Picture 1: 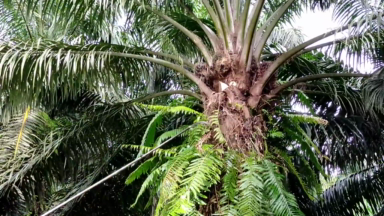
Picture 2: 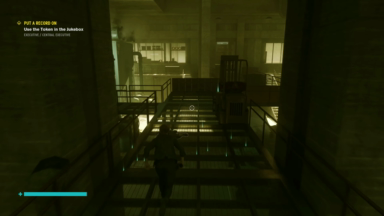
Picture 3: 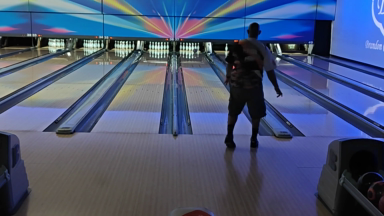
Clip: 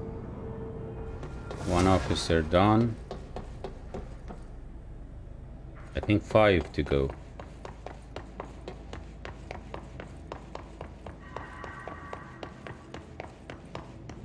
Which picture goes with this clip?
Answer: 2